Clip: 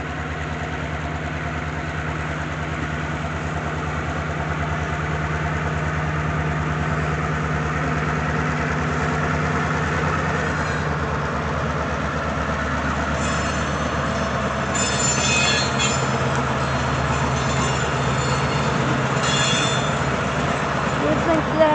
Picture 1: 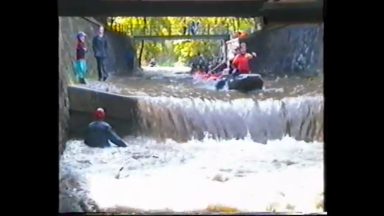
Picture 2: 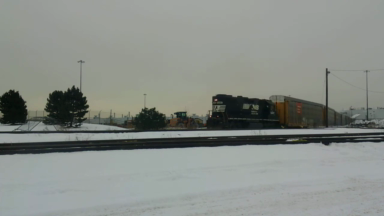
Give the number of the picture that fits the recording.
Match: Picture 2